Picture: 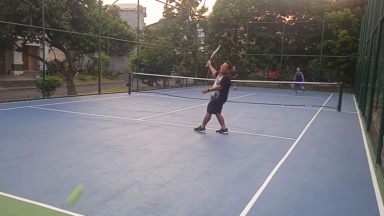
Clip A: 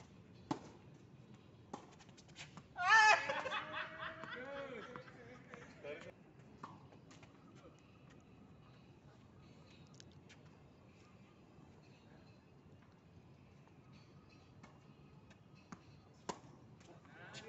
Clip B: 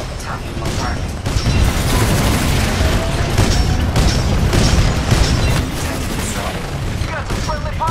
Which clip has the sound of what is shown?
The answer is A